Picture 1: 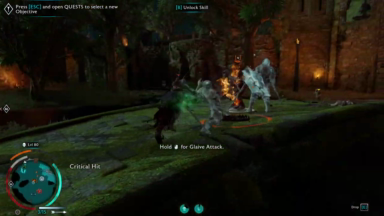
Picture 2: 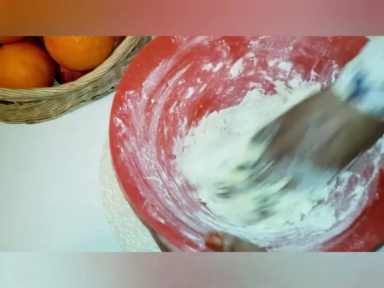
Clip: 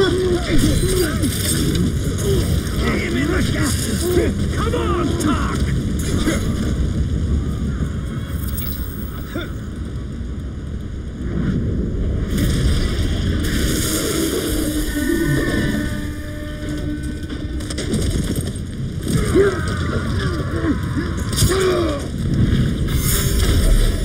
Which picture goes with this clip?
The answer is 1